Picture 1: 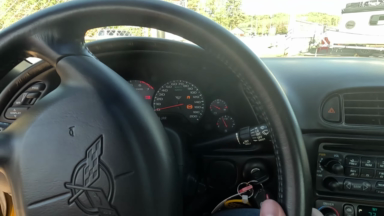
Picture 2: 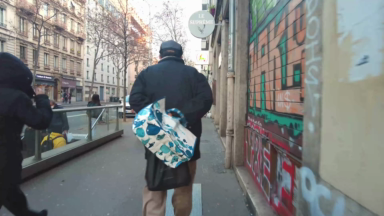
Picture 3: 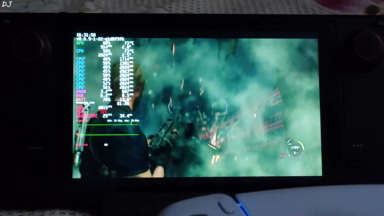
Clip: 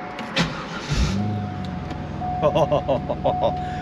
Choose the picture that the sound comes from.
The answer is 1